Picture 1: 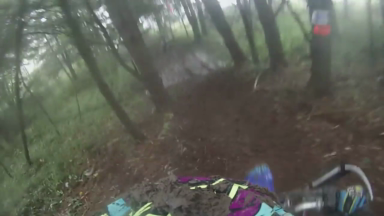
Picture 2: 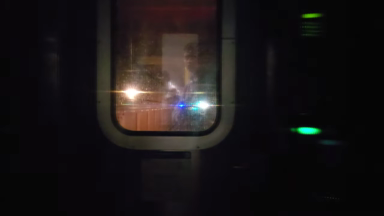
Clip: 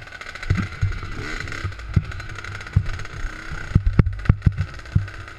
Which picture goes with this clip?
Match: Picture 1